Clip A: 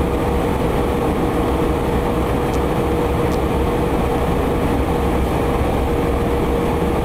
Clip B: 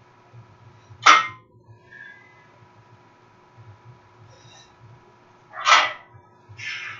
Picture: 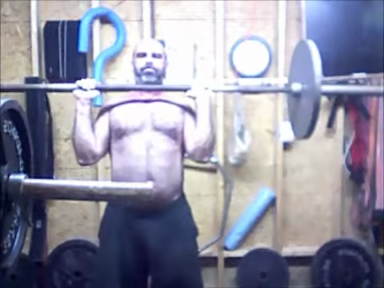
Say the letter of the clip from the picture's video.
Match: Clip B